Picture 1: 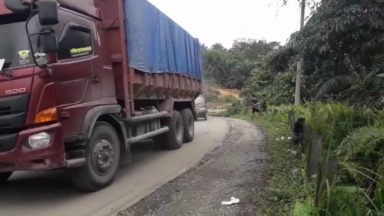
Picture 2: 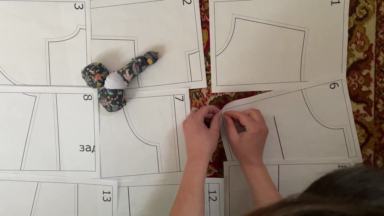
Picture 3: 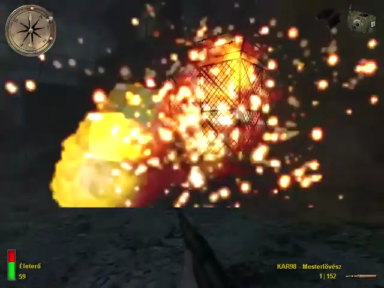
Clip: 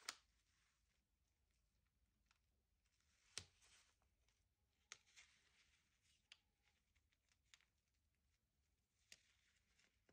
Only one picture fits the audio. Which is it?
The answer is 2